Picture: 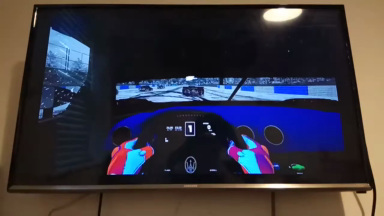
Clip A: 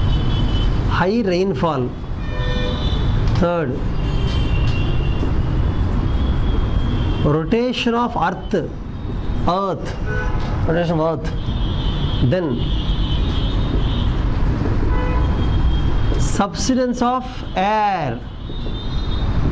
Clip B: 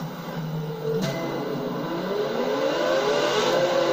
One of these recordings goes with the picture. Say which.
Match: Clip B